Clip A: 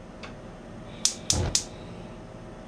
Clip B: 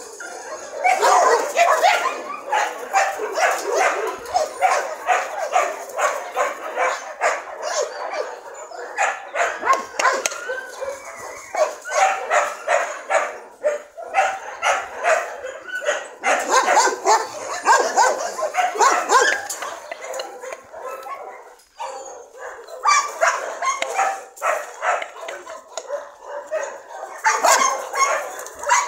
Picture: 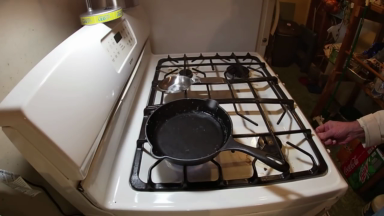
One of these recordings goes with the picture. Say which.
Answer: A